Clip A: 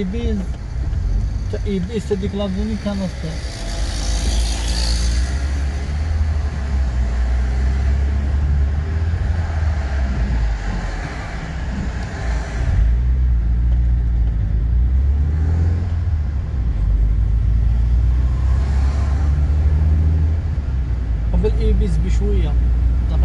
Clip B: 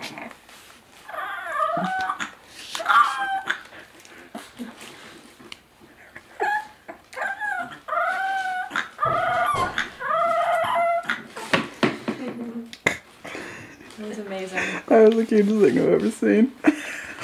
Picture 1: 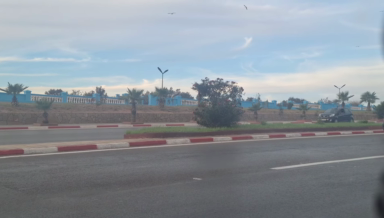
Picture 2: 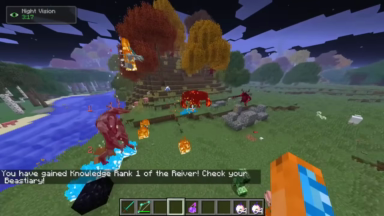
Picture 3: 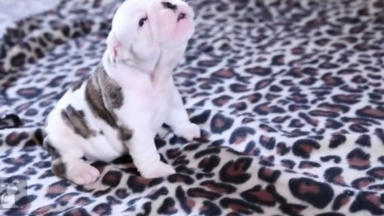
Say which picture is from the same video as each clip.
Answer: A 1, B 3